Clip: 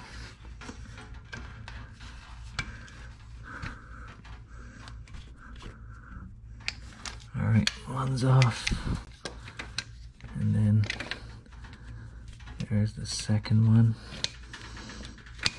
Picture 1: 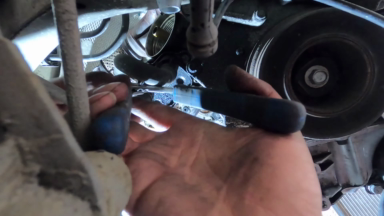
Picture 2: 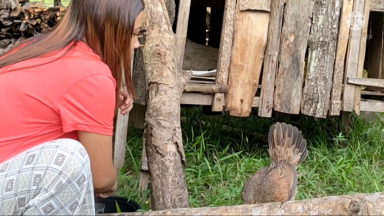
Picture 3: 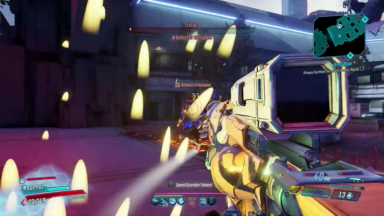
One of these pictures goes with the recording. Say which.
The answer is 1